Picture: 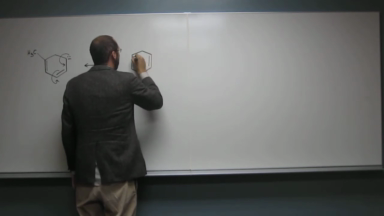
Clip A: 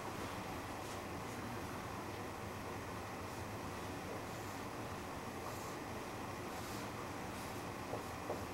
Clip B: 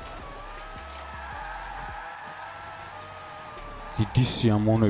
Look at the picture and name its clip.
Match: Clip A